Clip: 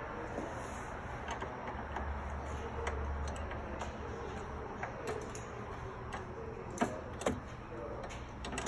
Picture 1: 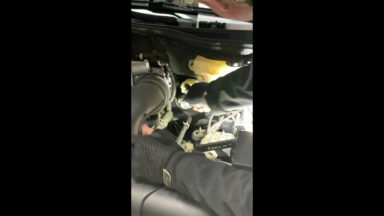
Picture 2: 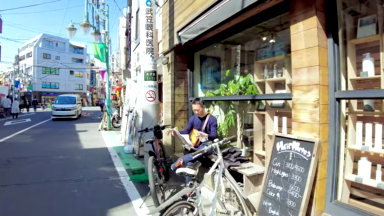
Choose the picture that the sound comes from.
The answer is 1